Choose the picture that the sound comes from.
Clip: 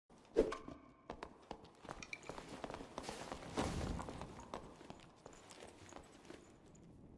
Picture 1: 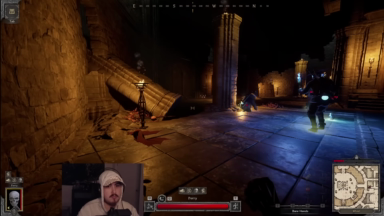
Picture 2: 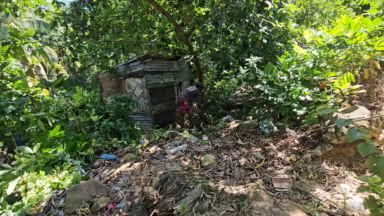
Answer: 1